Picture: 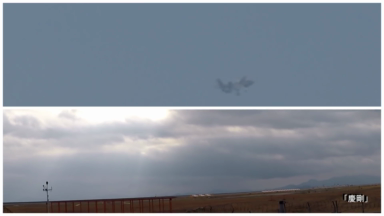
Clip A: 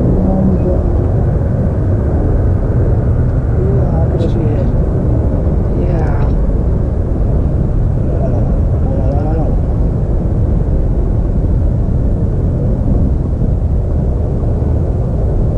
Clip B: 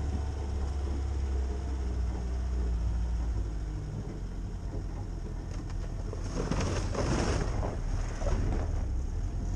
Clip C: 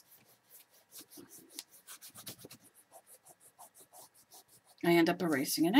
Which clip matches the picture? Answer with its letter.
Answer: A